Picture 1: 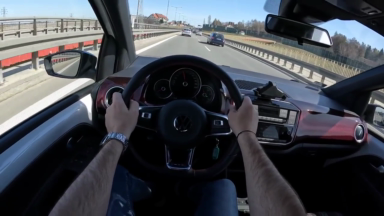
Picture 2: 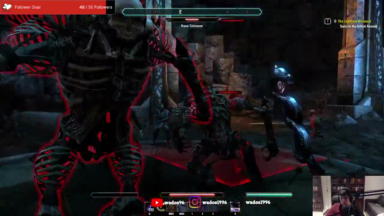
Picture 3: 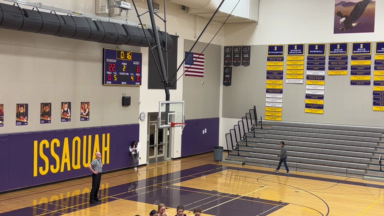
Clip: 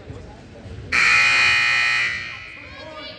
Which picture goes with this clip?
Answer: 3